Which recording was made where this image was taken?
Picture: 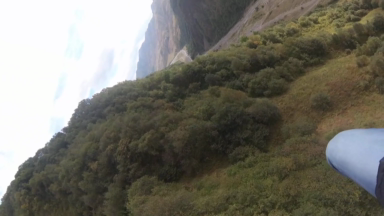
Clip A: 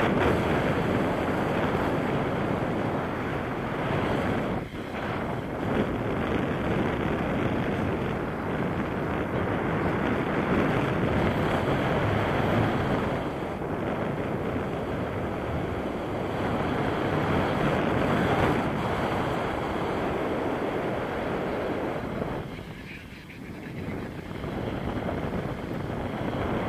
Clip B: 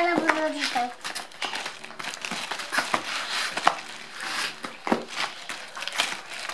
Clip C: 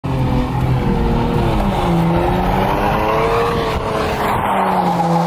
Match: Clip A